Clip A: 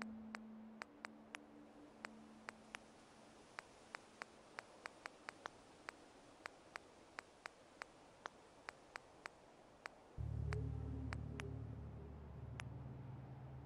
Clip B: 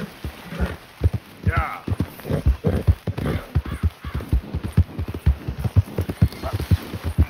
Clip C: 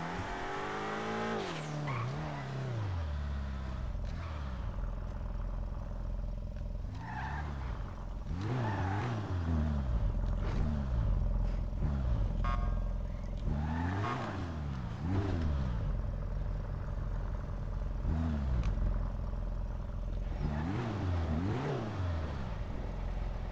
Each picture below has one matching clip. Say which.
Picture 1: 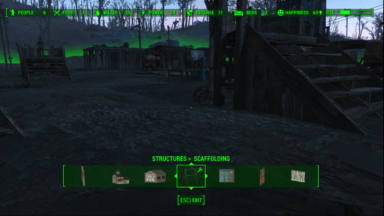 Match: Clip A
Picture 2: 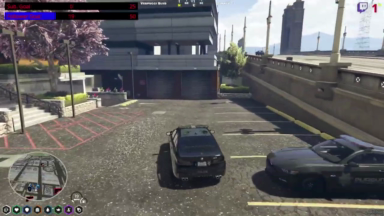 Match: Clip C